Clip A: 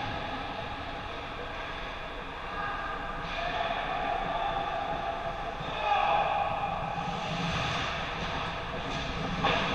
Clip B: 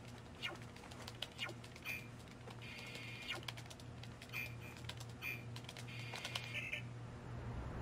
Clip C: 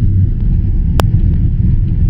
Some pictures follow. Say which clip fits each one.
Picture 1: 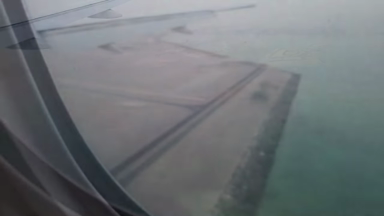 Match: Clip C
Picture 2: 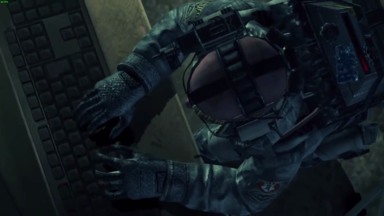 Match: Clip B